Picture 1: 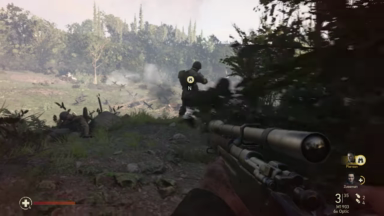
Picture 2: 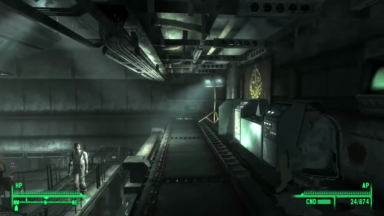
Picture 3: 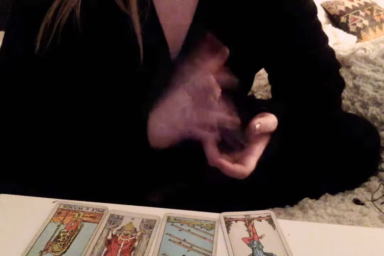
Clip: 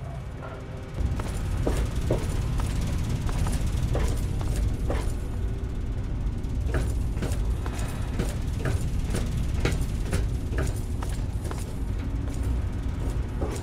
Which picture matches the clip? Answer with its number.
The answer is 2